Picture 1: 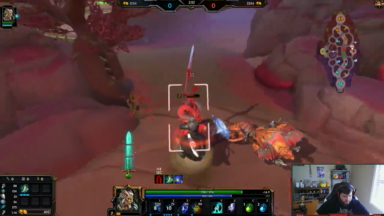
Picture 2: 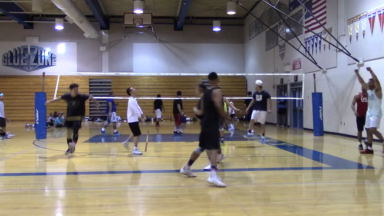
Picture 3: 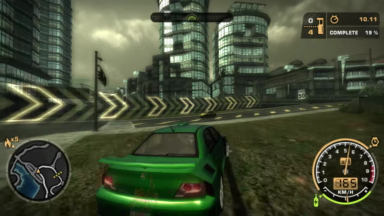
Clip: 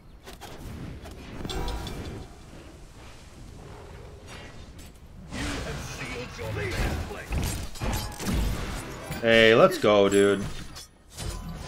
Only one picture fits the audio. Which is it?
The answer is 1